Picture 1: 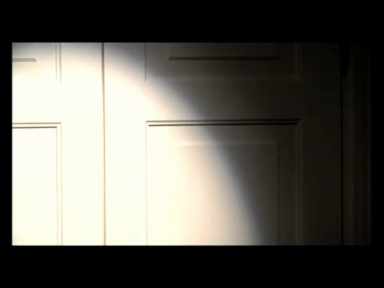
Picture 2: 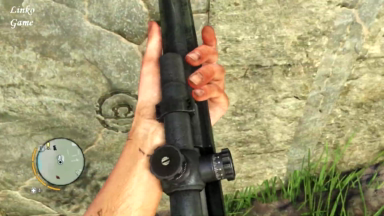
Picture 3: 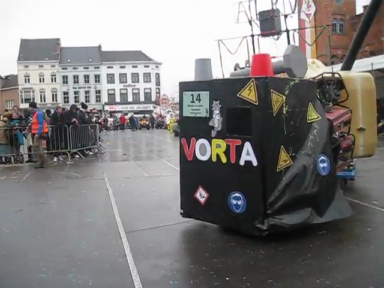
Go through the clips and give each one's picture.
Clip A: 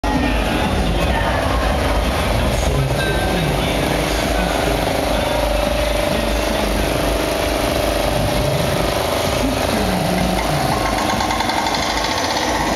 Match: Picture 3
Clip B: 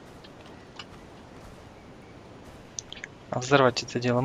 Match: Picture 2